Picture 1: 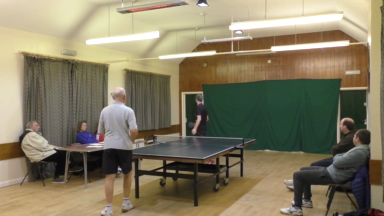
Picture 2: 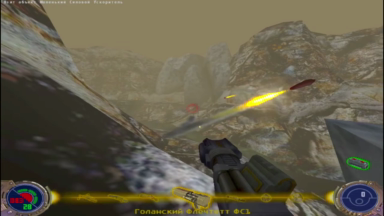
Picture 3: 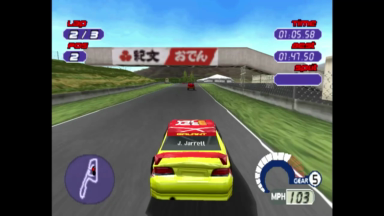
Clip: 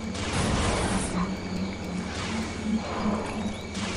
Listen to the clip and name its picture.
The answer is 2